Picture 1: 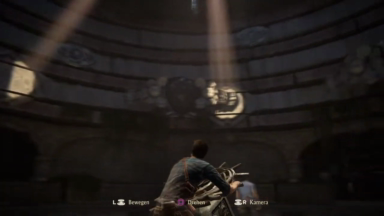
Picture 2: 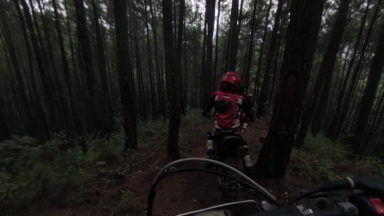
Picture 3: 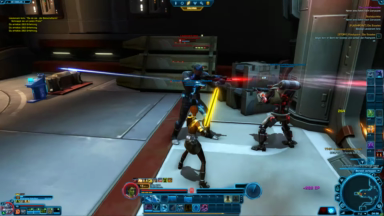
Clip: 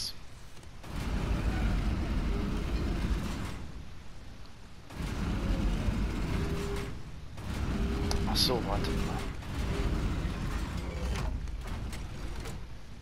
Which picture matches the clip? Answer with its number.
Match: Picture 1